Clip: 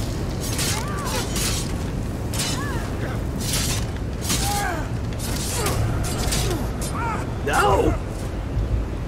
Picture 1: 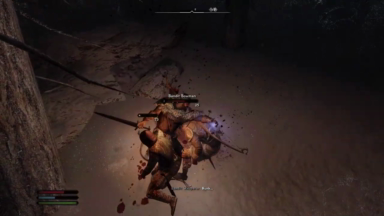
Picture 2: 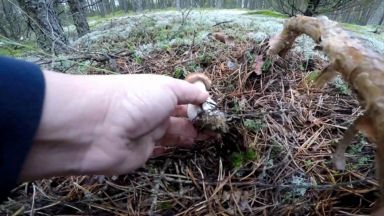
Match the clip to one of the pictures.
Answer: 1